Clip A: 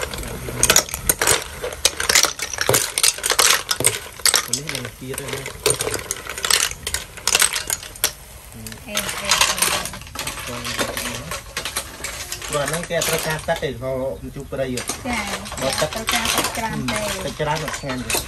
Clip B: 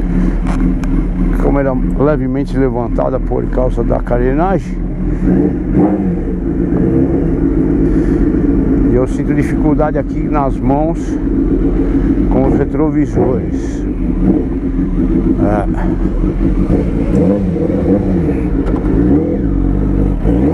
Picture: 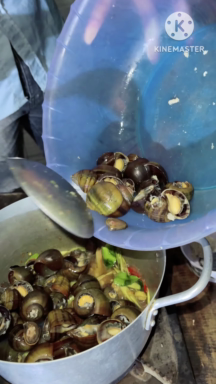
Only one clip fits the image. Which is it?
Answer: A